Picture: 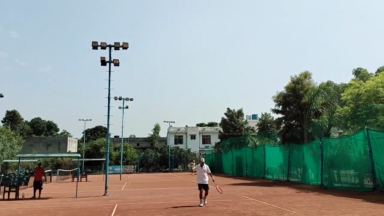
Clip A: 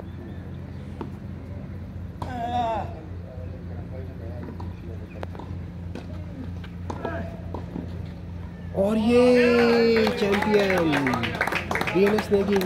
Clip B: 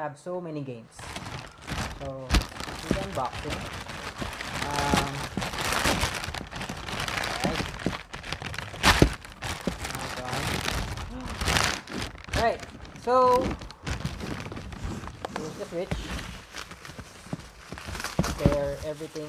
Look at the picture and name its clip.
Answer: A